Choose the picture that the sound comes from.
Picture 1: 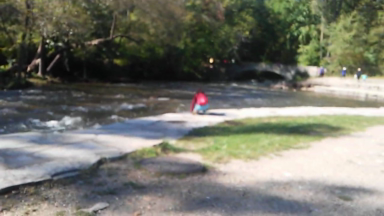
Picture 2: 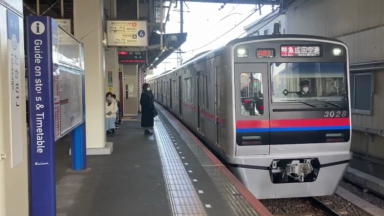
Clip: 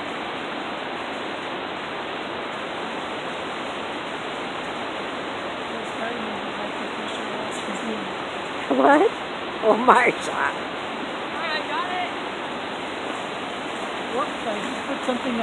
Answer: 1